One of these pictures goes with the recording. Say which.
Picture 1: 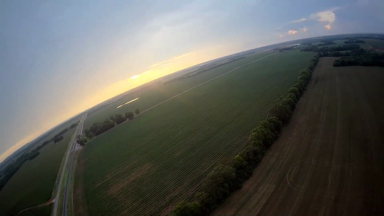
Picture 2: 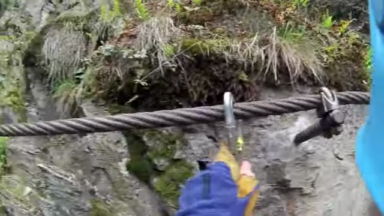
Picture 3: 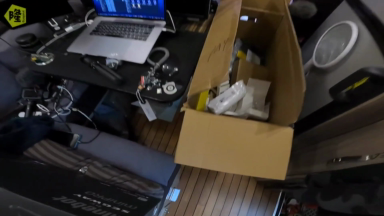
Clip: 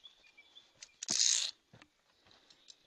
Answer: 2